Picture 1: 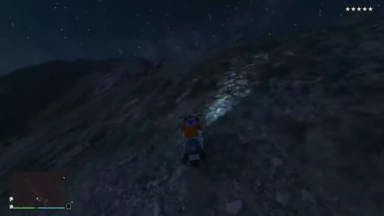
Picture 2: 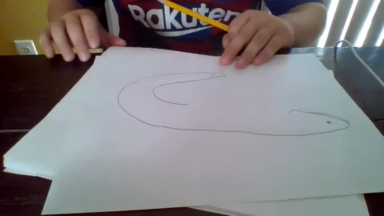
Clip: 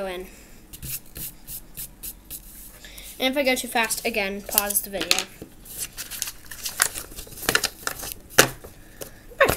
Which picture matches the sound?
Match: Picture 2